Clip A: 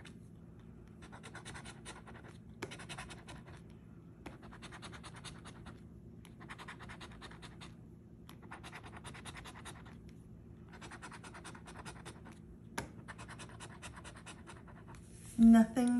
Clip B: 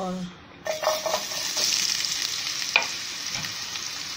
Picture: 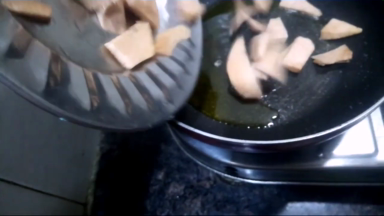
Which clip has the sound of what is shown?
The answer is B